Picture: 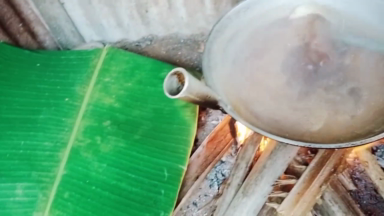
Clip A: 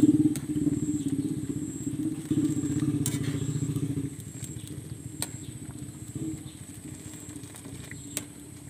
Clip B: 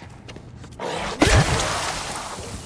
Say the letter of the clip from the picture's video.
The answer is A